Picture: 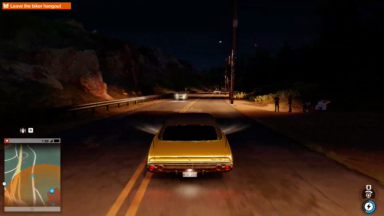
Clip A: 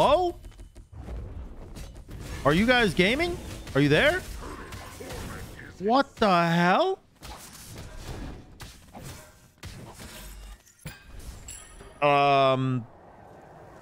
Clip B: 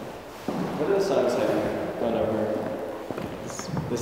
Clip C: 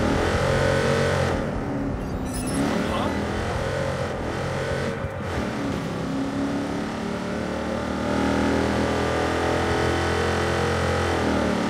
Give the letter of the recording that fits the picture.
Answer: C